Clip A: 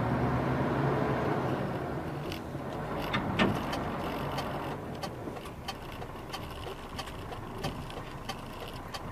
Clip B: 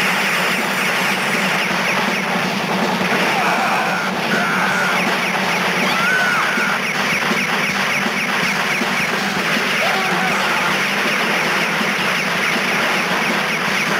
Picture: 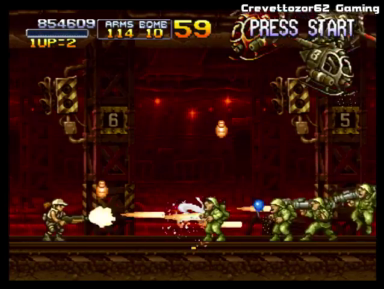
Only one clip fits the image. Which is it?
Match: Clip B